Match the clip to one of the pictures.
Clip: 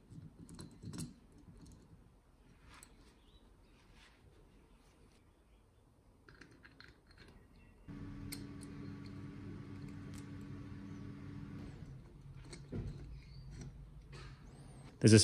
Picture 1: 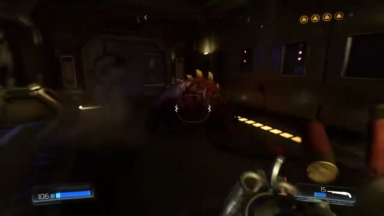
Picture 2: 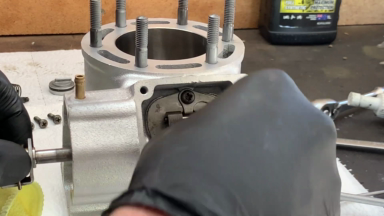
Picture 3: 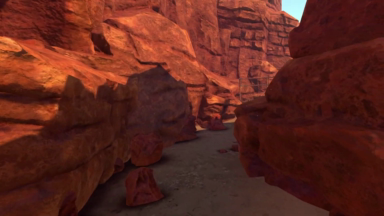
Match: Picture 2